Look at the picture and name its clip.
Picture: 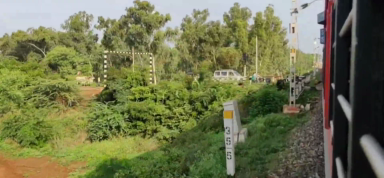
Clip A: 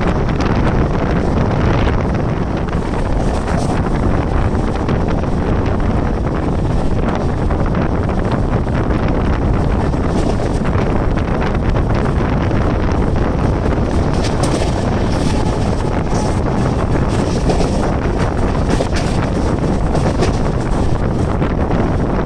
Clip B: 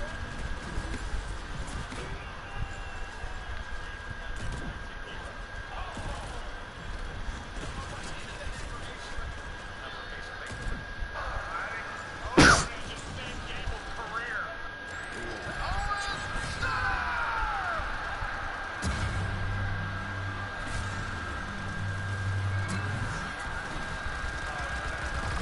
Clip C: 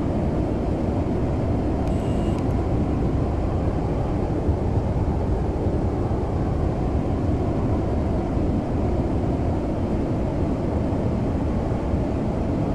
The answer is A